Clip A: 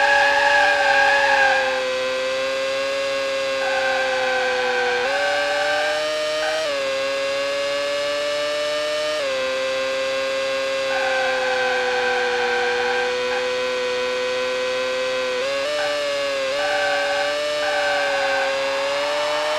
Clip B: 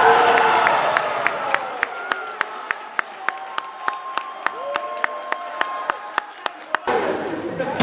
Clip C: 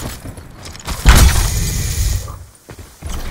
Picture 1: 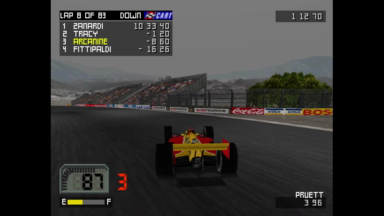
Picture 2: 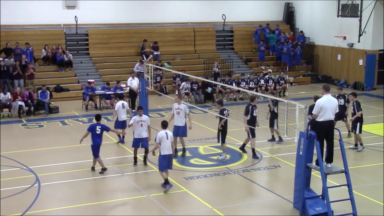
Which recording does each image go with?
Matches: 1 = A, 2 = B